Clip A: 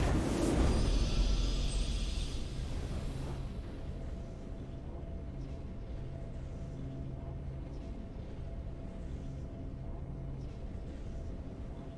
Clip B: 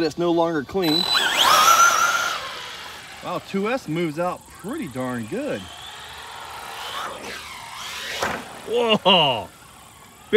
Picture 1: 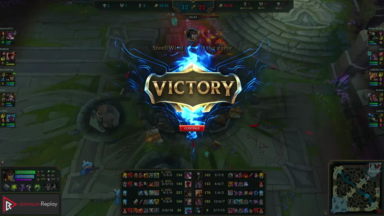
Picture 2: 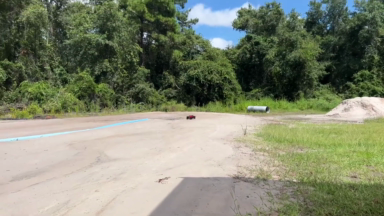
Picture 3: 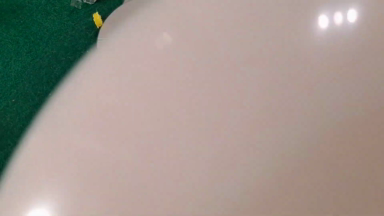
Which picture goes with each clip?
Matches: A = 1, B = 2